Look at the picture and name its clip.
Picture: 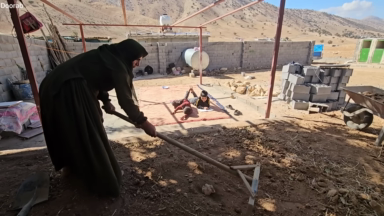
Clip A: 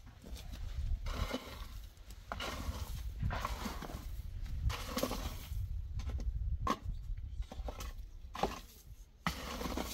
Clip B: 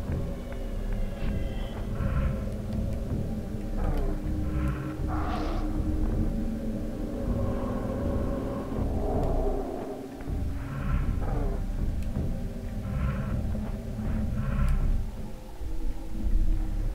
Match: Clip A